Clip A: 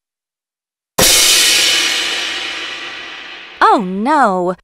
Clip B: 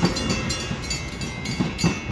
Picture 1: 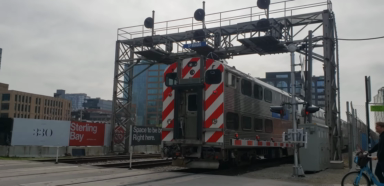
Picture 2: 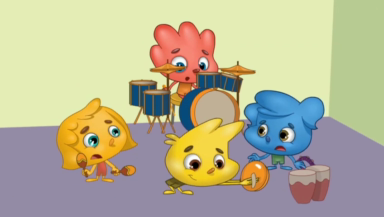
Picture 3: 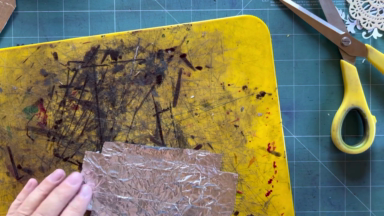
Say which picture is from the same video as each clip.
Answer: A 2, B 1